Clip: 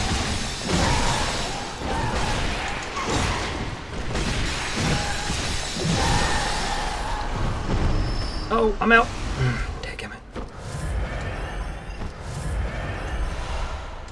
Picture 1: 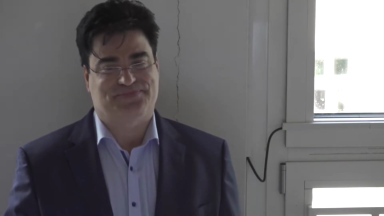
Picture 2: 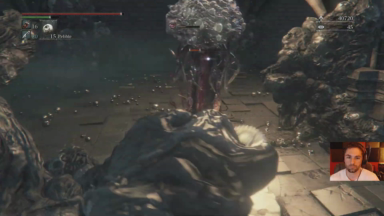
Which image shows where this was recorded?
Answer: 2